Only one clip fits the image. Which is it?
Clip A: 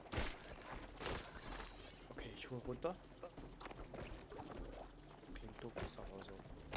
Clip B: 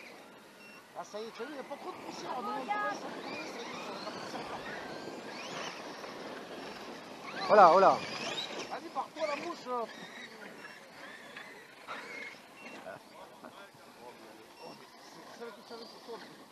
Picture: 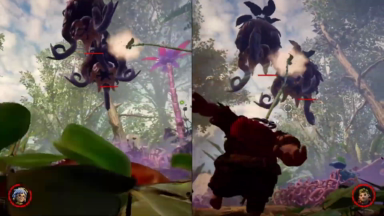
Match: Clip A